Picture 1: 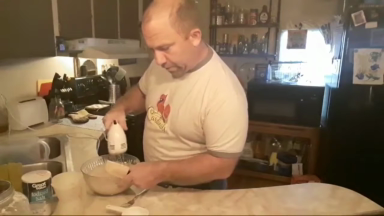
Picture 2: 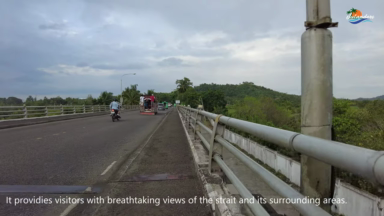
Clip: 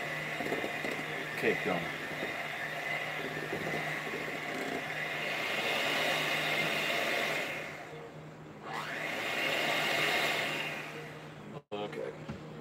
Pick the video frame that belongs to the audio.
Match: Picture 1